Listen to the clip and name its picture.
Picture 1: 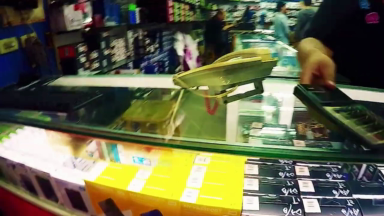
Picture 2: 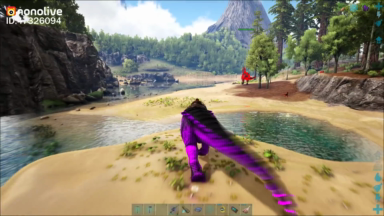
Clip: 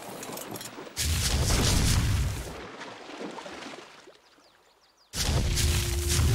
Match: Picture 2